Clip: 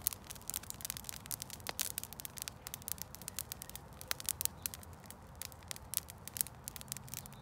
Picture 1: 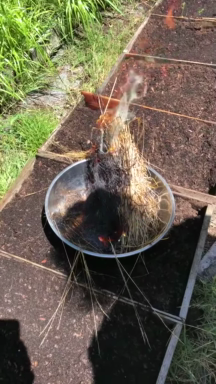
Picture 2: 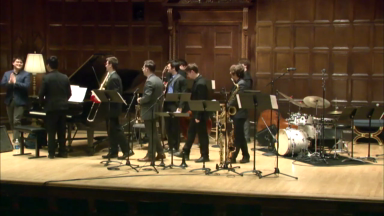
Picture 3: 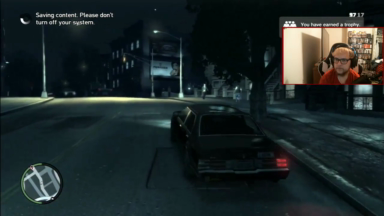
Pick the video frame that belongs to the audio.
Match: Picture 1